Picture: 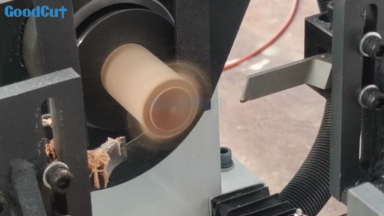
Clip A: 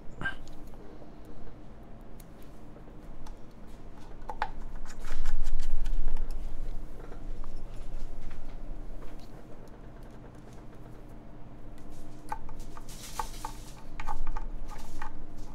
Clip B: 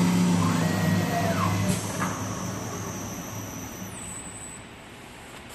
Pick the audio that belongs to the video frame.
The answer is B